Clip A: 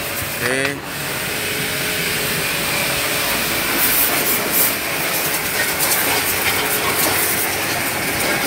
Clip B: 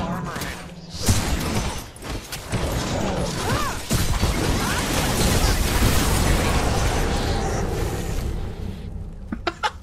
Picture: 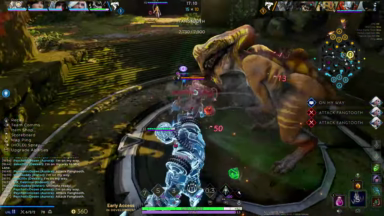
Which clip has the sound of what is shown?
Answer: B